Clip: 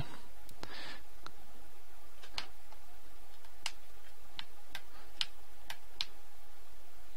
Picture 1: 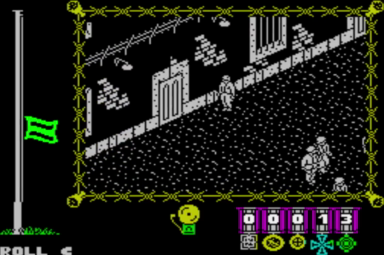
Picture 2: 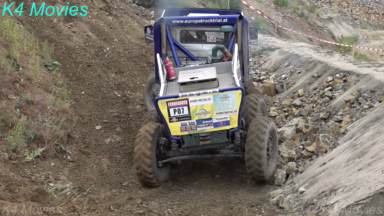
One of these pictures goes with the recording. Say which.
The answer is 1